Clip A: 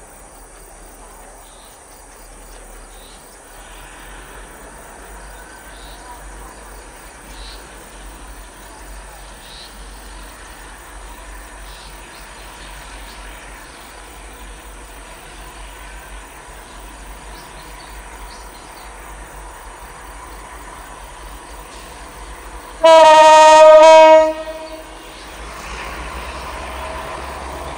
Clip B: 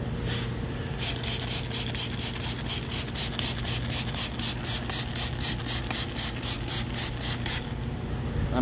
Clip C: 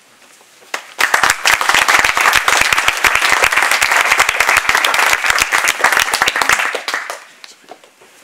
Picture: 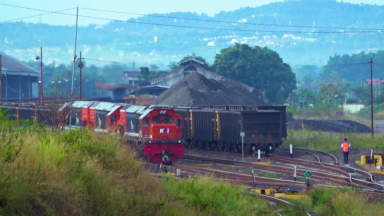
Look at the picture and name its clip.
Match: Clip A